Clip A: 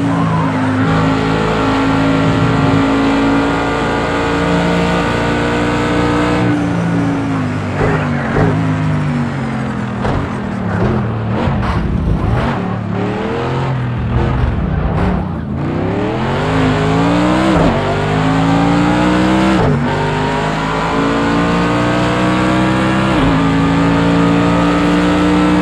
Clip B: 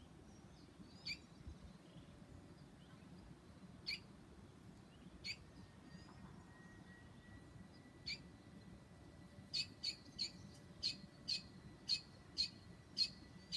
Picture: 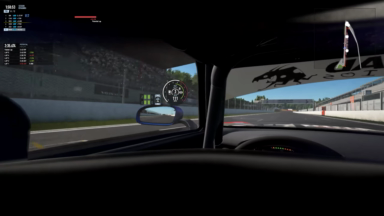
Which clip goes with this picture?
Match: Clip A